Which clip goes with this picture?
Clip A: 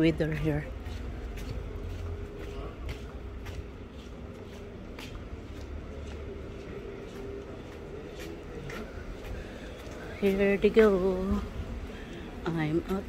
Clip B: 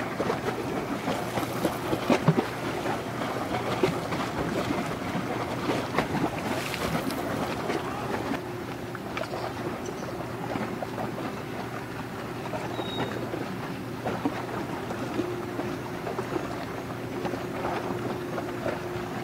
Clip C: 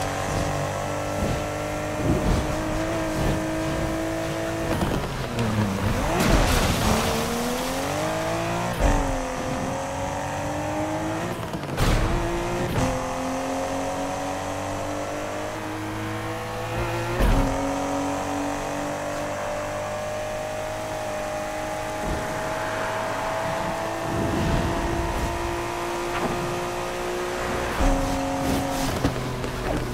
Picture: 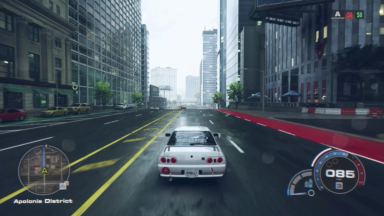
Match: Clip C